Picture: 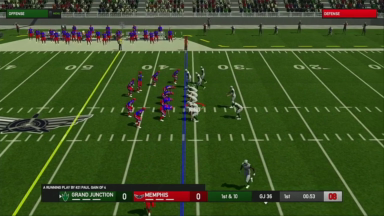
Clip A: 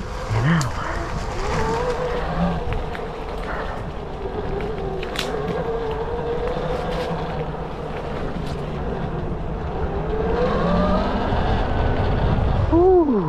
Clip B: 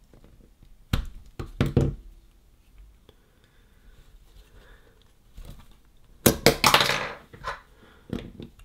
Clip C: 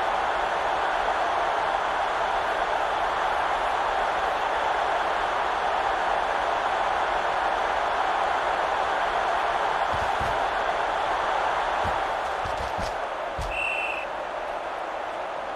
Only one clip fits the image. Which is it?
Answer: C